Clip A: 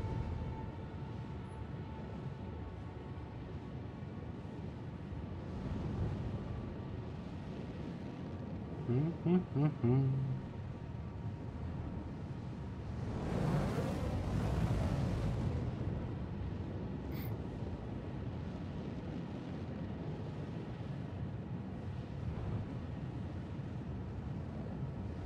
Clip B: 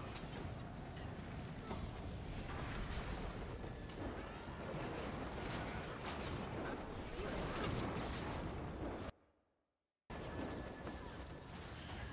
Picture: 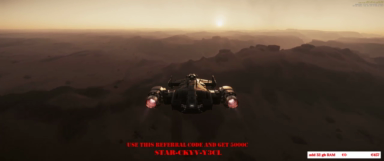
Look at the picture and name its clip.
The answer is A